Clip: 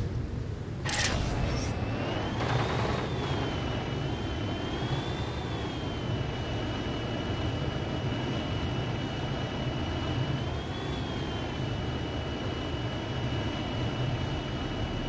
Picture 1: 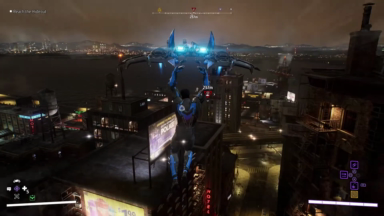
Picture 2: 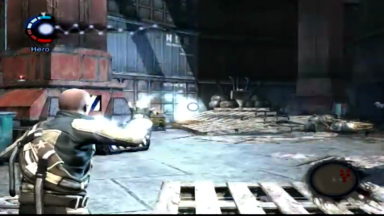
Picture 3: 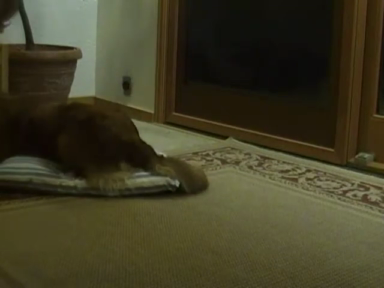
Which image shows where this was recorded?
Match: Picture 1